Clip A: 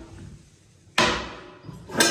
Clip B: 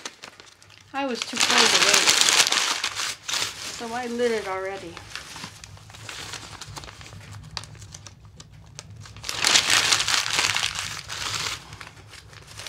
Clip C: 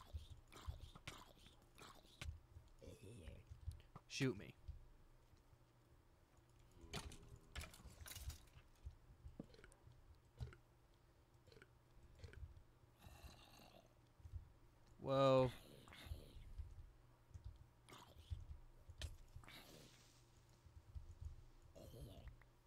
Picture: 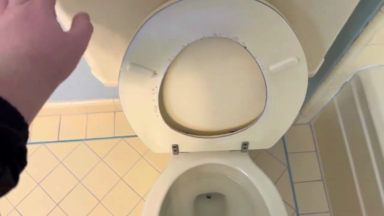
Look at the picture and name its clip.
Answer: A